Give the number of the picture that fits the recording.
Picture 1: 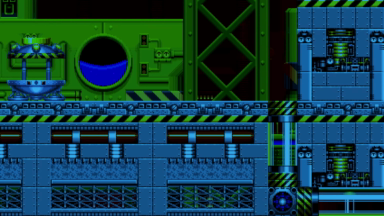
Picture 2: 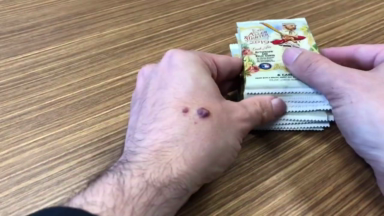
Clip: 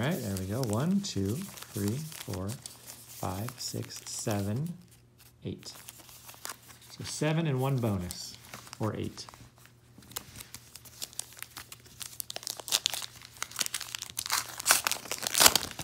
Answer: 2